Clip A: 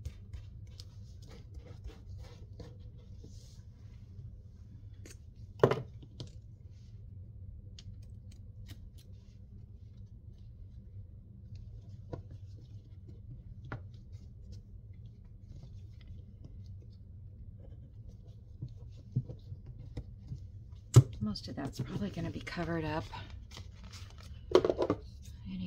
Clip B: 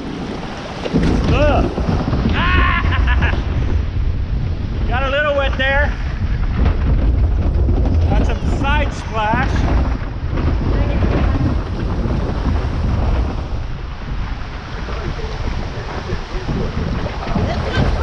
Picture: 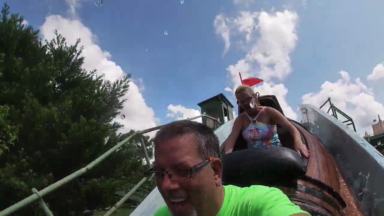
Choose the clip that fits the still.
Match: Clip B